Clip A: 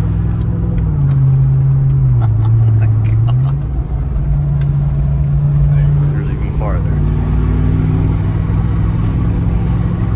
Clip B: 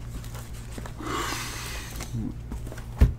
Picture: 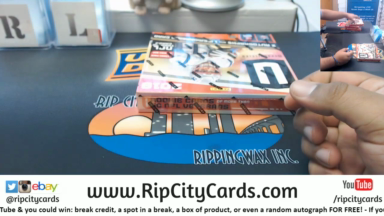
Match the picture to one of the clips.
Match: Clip B